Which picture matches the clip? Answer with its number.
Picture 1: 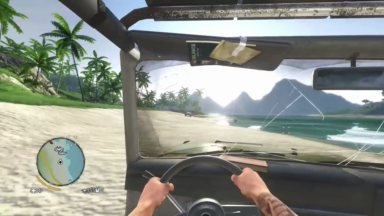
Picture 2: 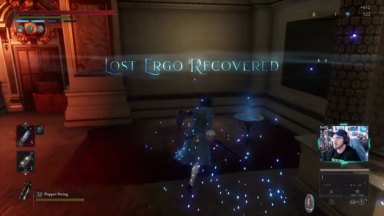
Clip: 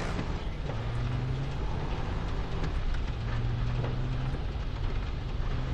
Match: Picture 1